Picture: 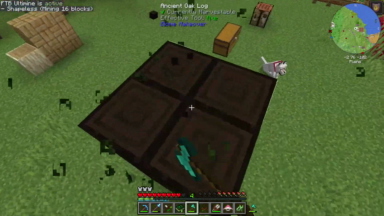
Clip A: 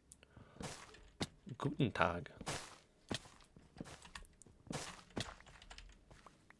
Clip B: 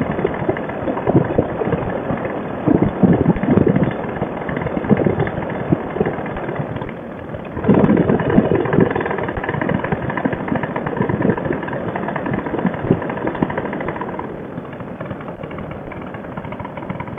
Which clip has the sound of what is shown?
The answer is A